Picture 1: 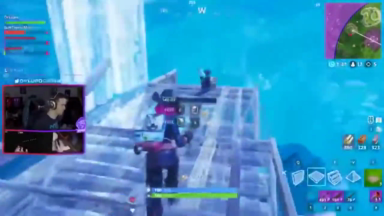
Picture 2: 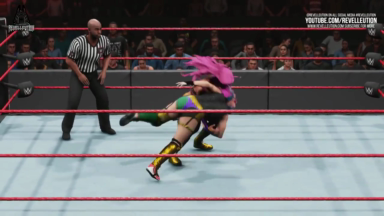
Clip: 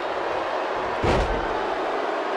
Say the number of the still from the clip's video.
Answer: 2